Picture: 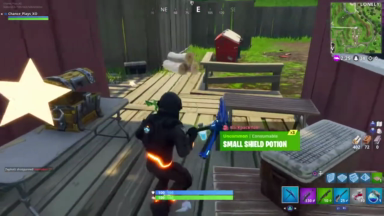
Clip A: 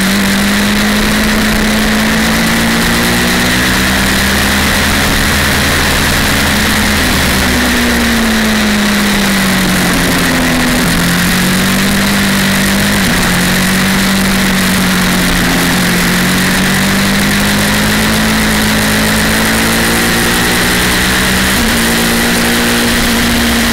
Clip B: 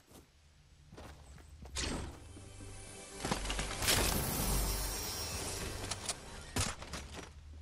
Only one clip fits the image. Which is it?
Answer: B